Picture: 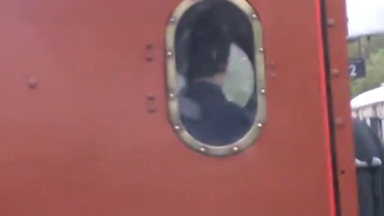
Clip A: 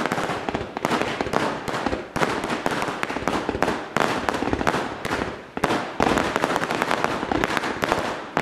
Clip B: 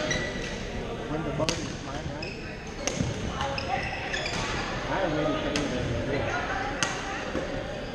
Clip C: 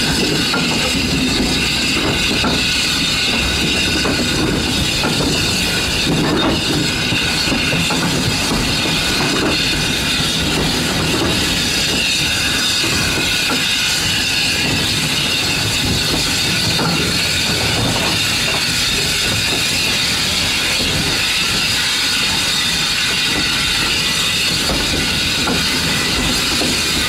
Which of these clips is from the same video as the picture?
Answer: C